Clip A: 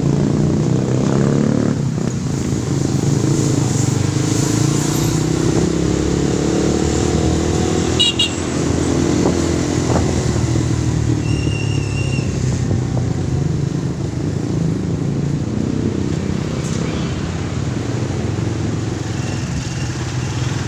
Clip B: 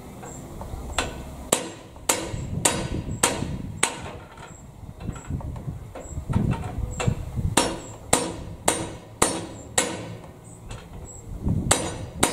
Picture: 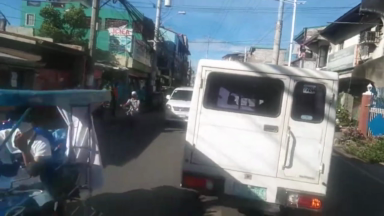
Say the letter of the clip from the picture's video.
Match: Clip A